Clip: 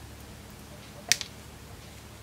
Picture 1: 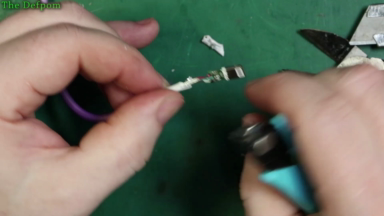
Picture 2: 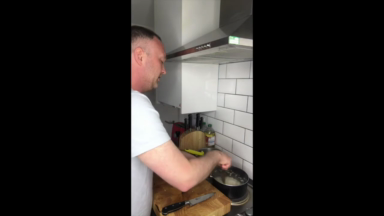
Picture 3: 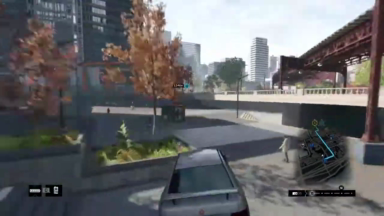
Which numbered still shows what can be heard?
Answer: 1